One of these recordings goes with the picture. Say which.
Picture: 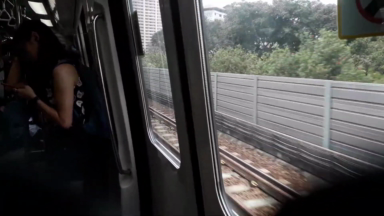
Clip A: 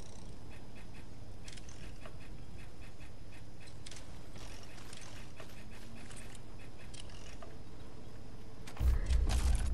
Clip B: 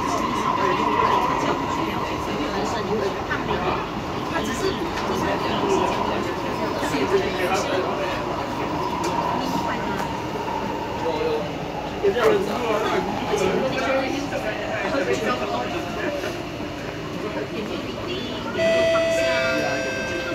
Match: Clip B